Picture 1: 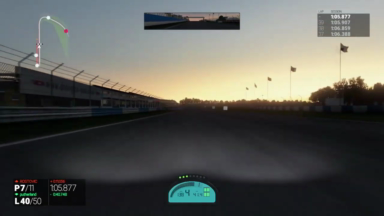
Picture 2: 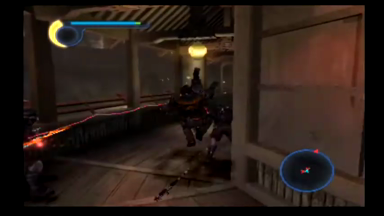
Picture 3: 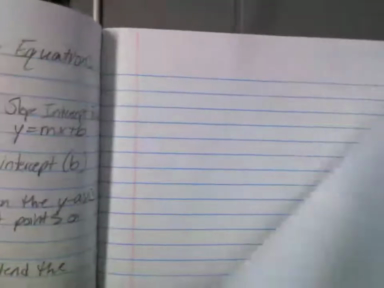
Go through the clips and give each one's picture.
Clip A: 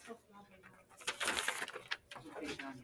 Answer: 3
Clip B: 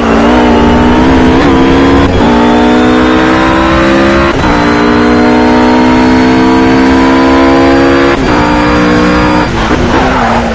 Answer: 1